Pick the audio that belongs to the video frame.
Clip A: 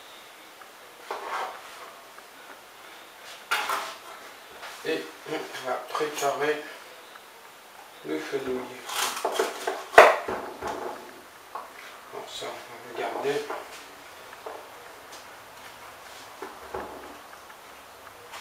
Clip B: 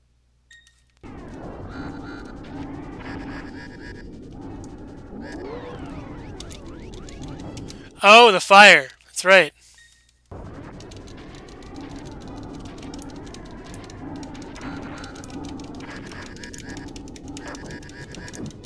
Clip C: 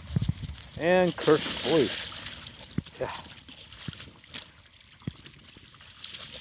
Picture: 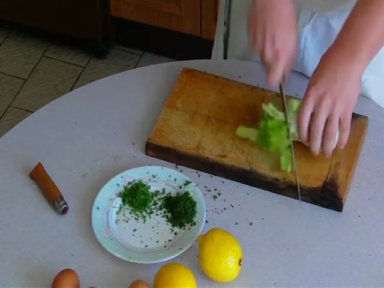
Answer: A